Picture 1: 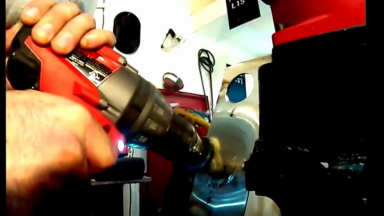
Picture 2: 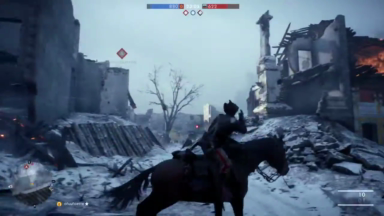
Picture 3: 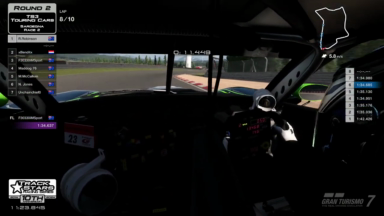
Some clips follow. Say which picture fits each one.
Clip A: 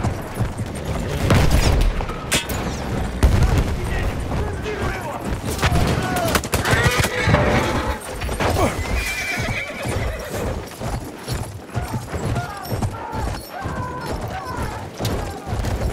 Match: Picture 2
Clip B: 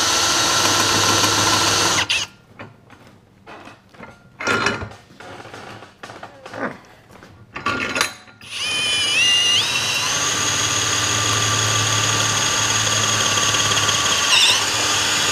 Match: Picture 1